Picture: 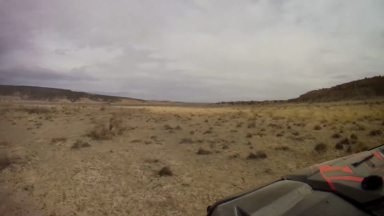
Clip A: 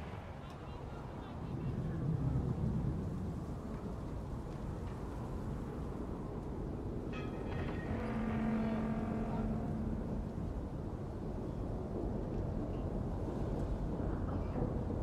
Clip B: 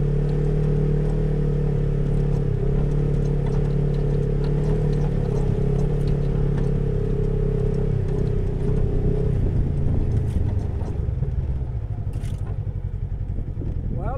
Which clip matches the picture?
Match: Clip B